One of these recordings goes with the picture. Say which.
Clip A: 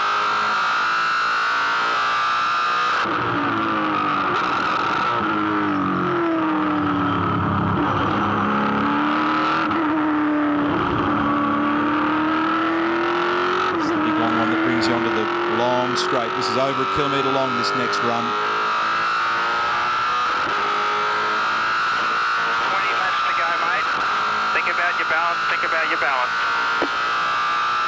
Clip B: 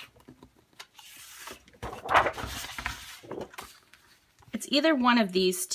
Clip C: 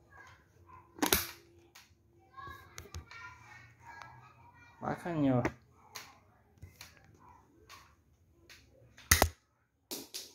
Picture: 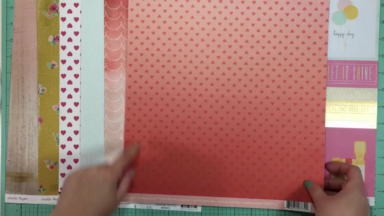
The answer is B